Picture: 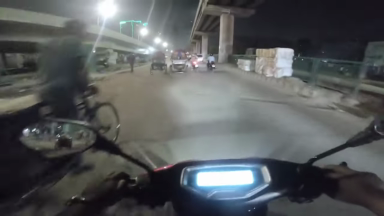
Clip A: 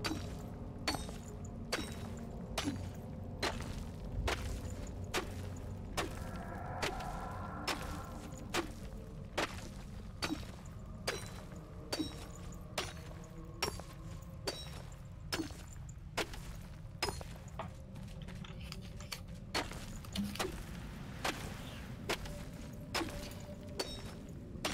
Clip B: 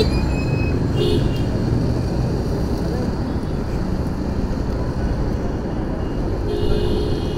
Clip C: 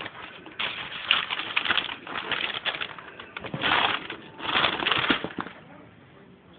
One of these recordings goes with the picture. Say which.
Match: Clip B